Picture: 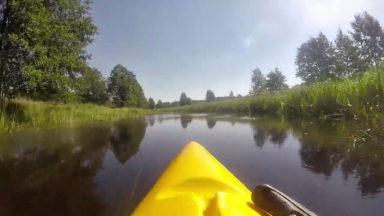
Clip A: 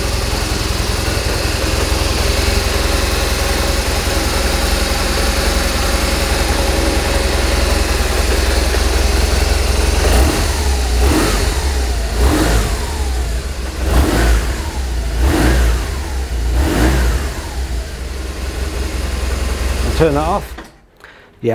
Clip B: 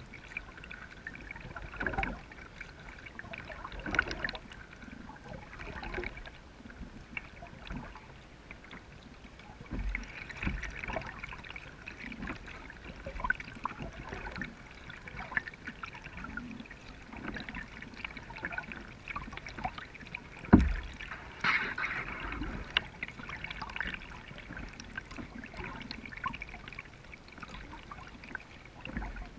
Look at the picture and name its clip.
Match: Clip B